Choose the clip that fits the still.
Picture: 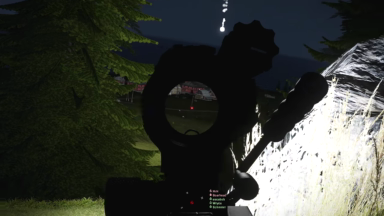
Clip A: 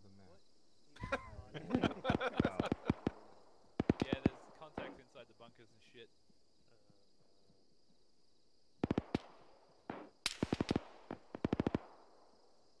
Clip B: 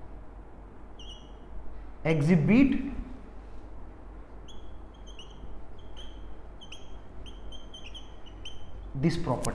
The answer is A